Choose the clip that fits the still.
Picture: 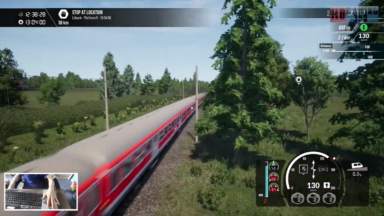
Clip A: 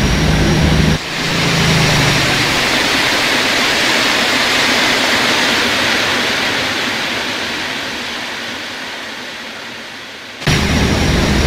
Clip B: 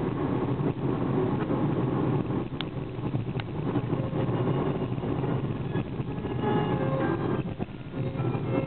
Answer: A